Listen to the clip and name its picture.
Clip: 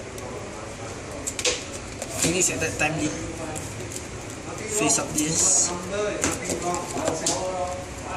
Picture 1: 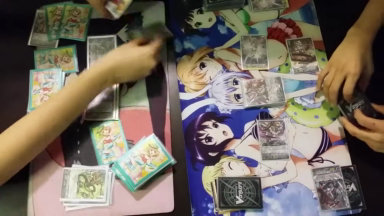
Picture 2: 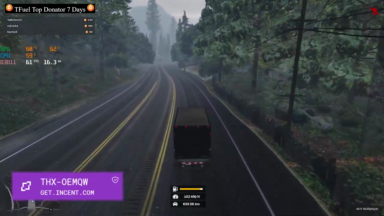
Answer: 1